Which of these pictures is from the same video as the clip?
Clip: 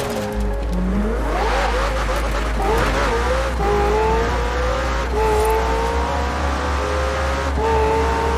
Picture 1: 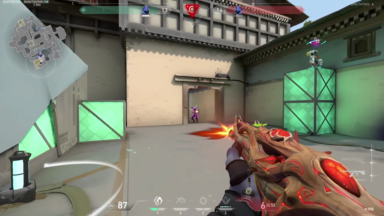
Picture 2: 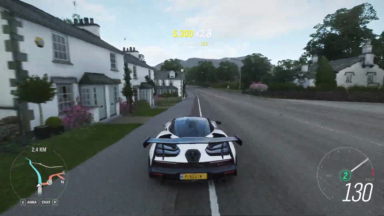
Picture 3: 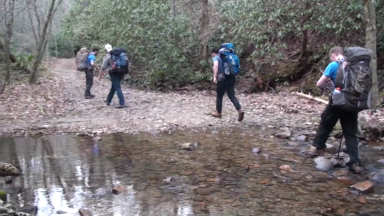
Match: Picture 2